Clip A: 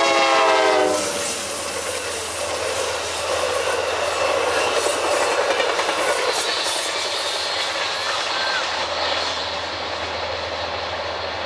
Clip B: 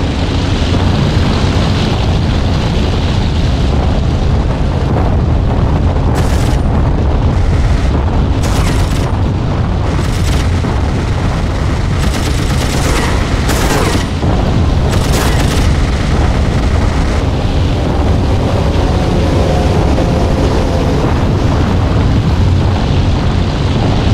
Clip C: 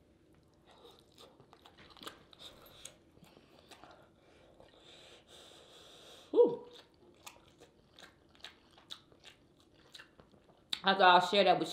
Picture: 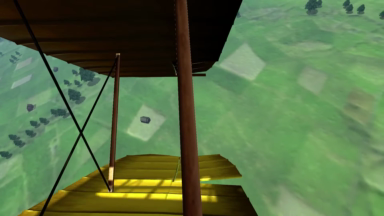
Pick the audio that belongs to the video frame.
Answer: B